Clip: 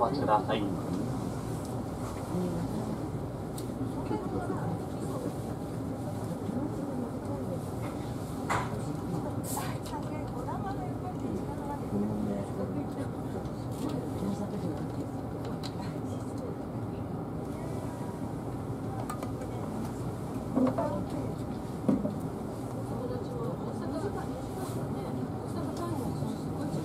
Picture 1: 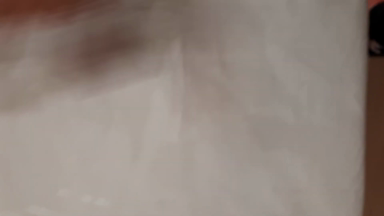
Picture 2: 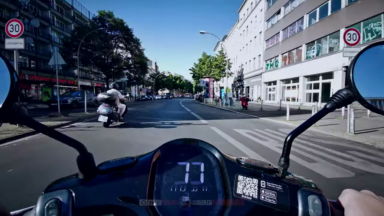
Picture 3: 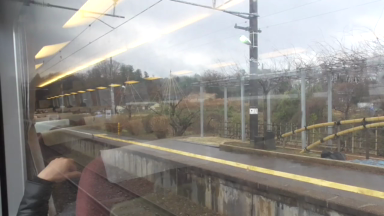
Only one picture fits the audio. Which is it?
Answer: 3